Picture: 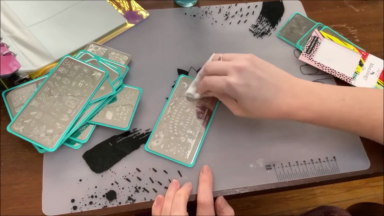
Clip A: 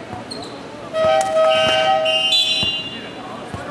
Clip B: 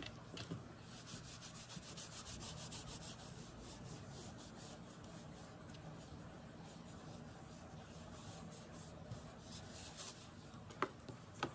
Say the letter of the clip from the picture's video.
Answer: B